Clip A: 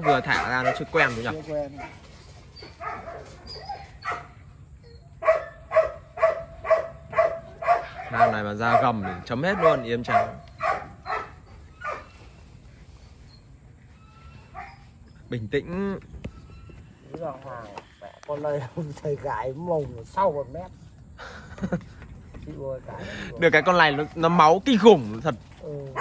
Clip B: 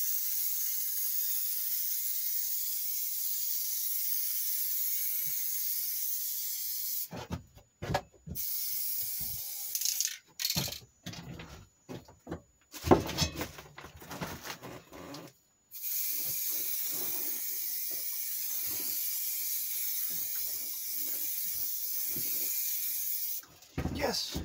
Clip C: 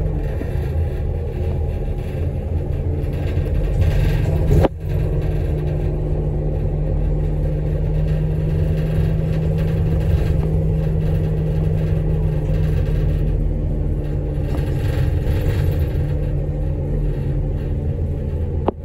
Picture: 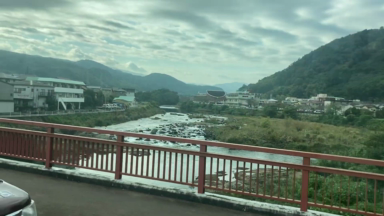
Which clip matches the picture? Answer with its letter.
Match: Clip C